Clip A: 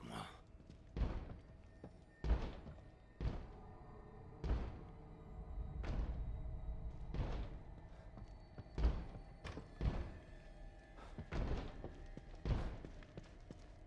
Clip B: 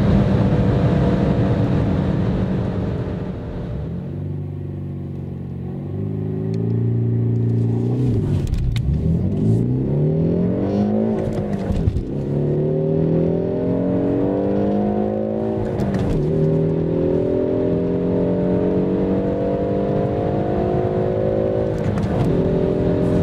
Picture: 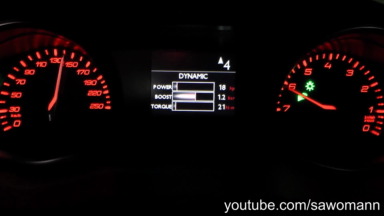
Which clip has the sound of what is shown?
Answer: B